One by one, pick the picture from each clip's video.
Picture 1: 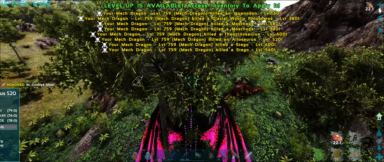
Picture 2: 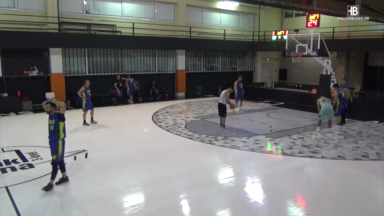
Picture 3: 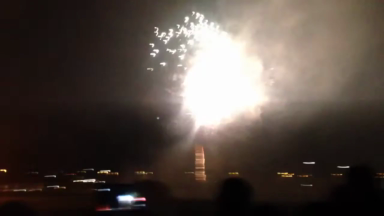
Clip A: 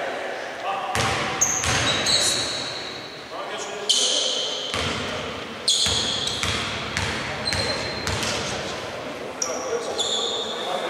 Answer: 2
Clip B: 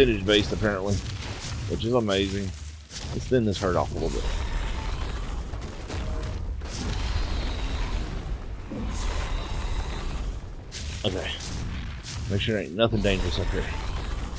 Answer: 1